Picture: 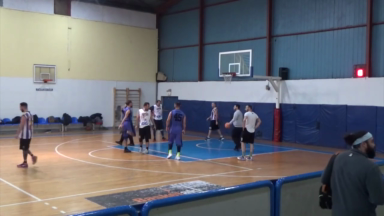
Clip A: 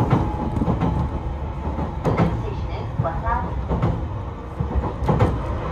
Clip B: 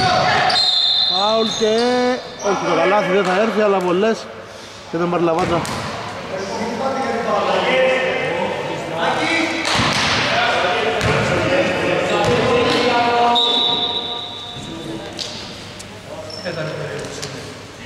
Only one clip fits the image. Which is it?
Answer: B